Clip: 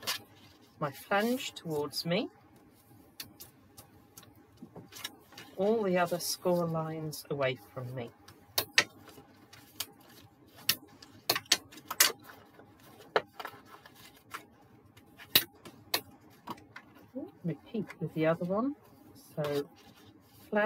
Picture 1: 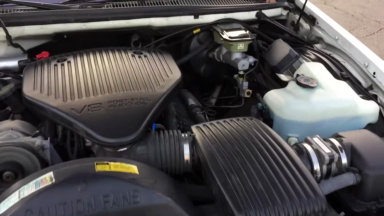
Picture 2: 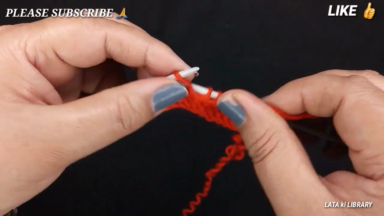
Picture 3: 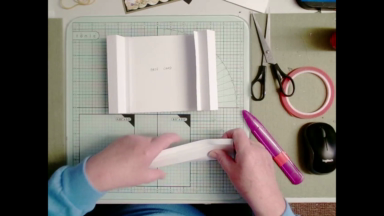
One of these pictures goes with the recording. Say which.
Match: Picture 3